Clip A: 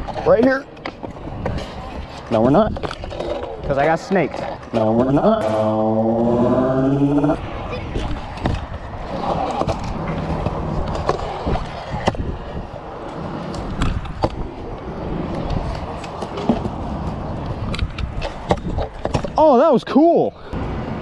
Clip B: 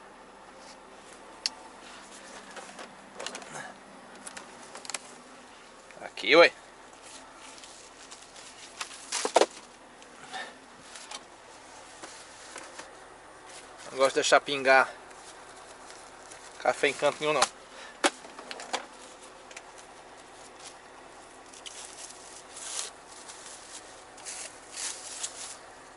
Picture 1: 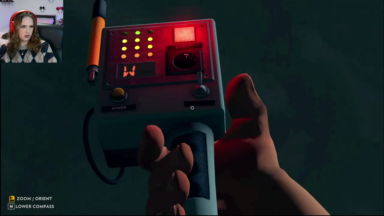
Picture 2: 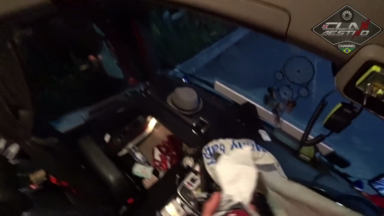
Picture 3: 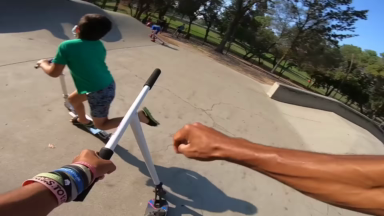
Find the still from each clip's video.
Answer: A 3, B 2